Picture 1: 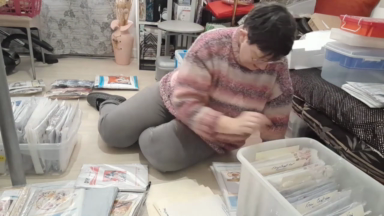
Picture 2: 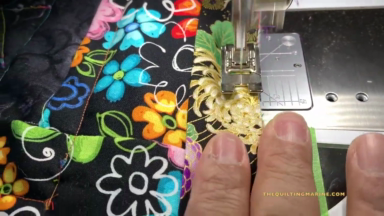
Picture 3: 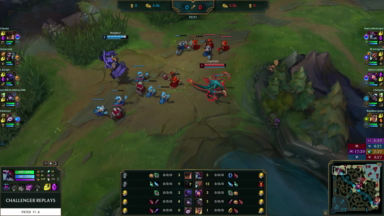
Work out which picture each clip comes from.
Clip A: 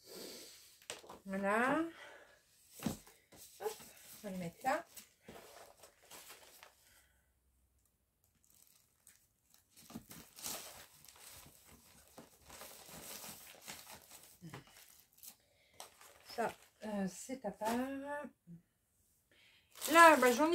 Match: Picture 1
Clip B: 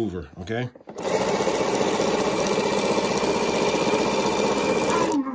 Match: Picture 2